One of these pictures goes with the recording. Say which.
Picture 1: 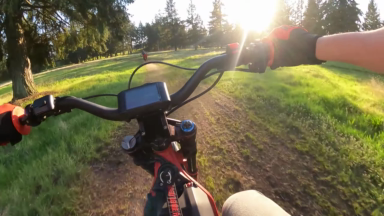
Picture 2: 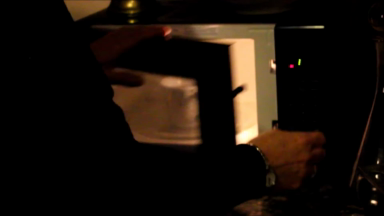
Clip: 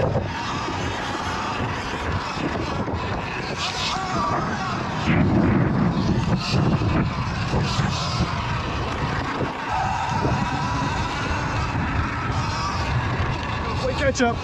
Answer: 1